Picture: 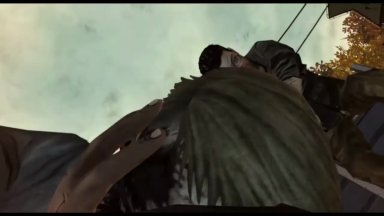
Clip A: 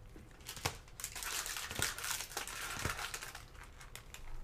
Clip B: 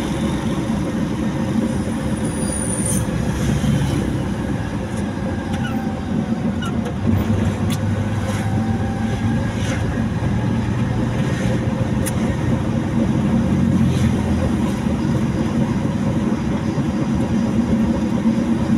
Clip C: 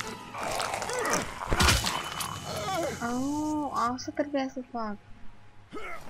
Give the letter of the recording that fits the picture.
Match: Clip C